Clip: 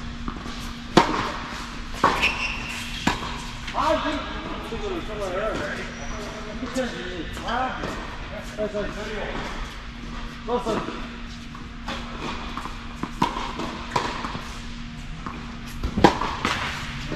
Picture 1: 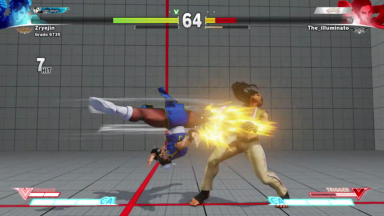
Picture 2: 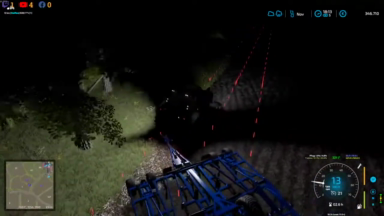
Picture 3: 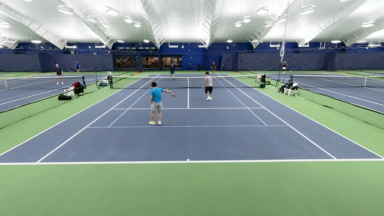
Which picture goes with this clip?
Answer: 3